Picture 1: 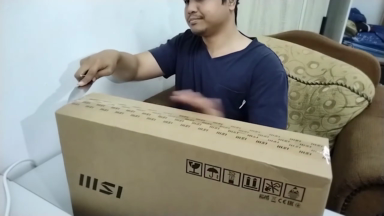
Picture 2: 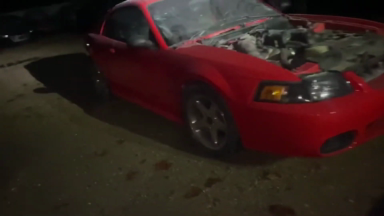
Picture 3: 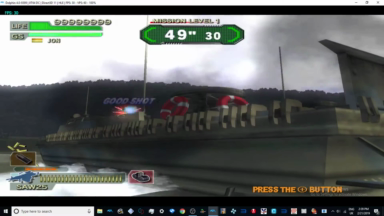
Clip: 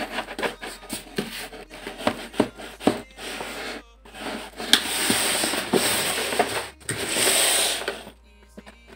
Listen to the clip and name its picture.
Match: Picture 1